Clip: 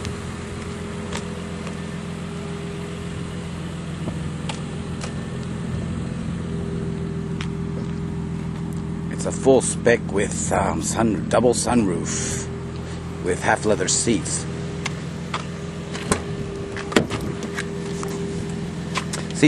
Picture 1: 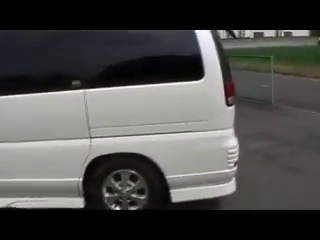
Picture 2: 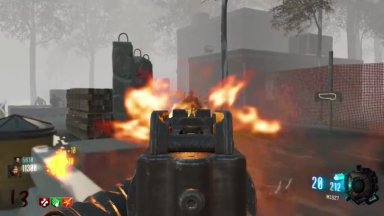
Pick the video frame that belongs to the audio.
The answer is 1